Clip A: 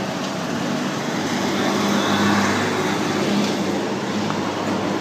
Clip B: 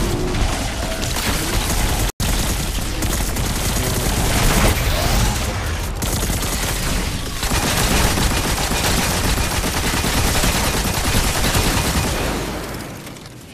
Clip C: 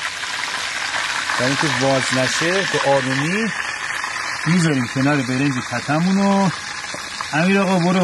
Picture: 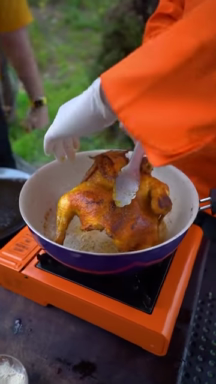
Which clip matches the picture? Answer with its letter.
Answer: C